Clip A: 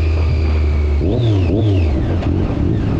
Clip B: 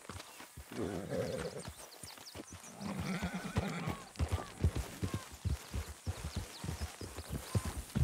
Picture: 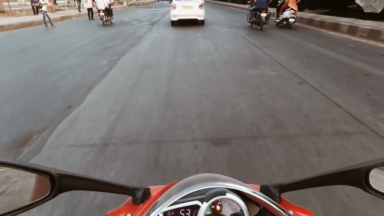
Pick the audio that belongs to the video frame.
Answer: A